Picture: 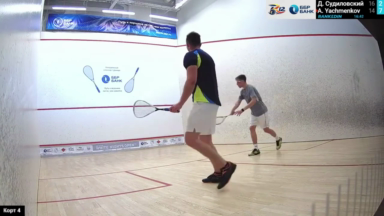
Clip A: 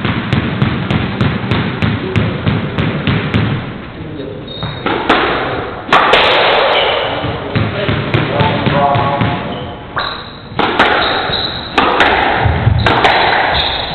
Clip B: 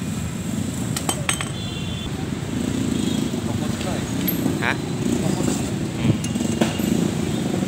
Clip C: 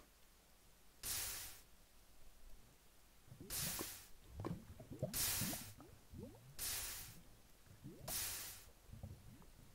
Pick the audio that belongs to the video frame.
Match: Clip A